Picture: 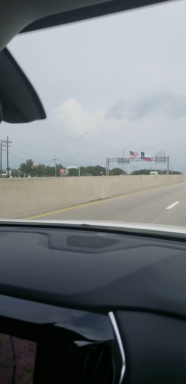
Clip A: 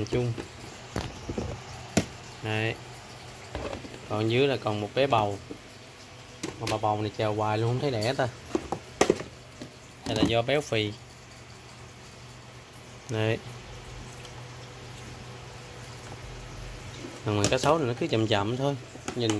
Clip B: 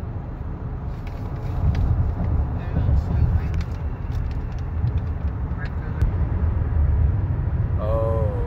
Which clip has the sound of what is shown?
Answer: B